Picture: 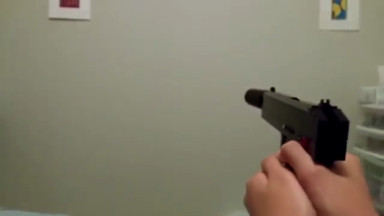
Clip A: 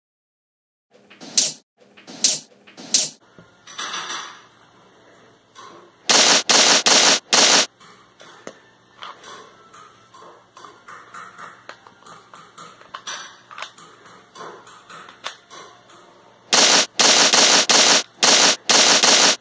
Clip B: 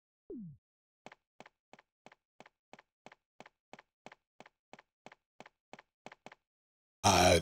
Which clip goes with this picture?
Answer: A